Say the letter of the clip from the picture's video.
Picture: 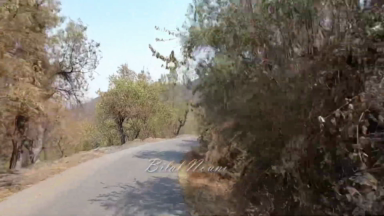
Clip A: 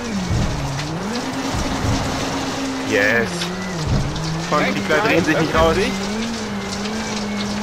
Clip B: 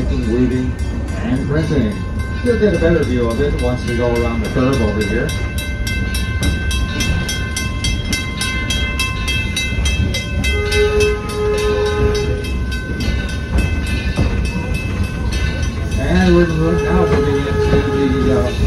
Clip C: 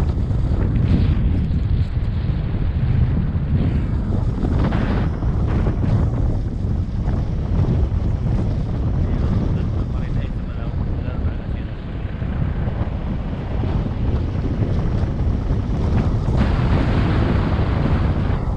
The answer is C